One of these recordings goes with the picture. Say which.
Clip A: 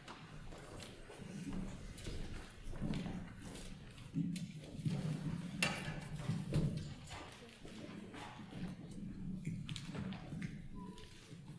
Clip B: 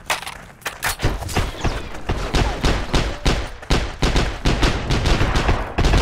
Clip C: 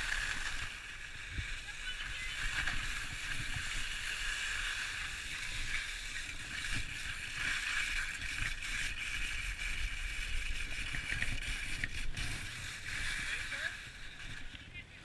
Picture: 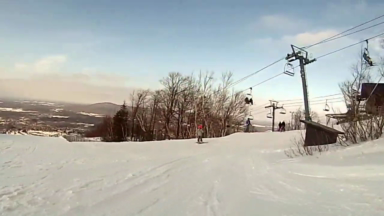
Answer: C